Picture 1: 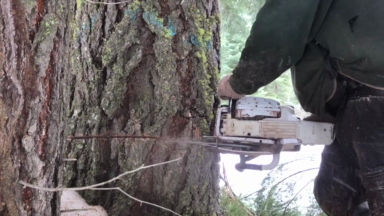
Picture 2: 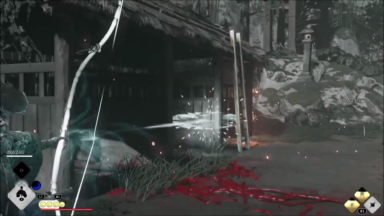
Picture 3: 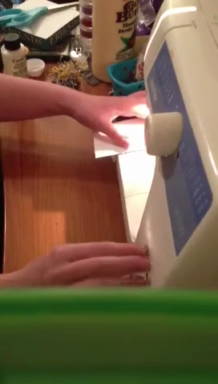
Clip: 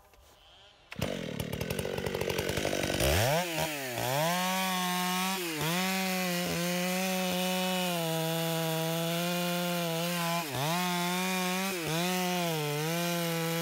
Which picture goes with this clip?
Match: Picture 1